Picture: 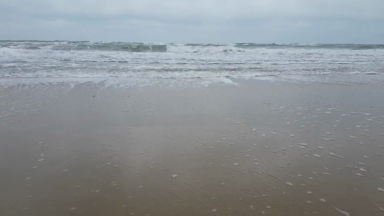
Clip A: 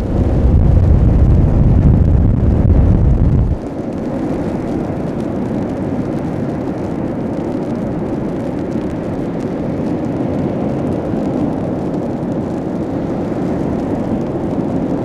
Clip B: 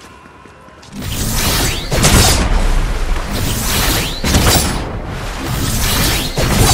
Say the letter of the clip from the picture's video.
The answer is A